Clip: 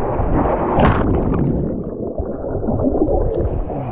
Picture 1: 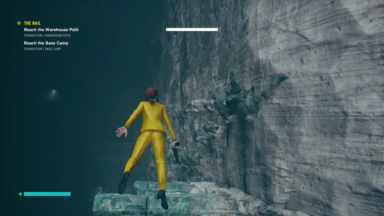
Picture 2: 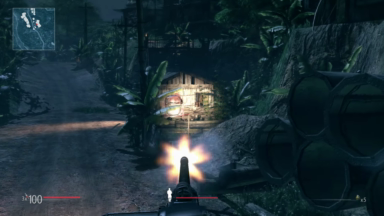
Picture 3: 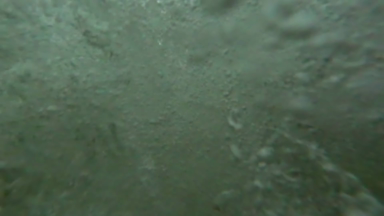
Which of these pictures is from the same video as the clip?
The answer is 3